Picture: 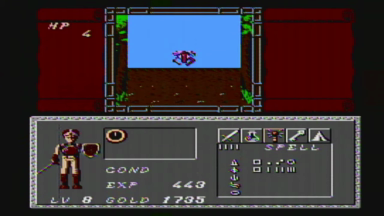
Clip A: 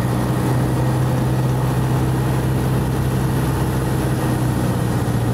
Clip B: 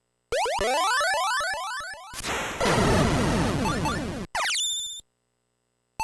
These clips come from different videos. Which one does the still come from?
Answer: B